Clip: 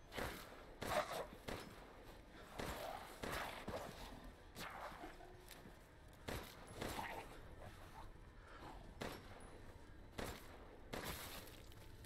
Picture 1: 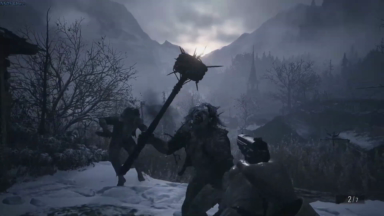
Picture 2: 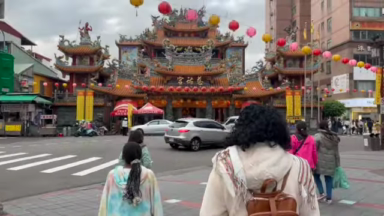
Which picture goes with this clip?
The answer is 1